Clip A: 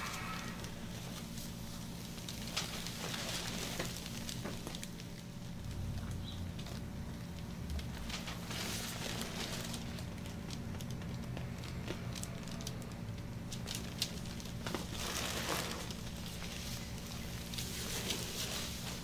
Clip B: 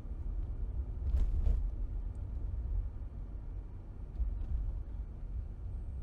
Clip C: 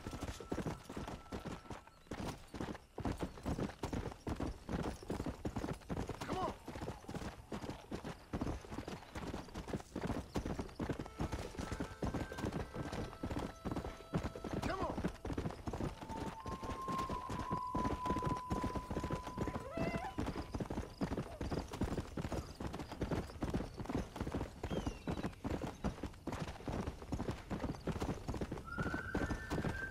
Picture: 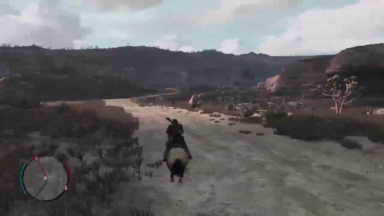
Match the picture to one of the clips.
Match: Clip C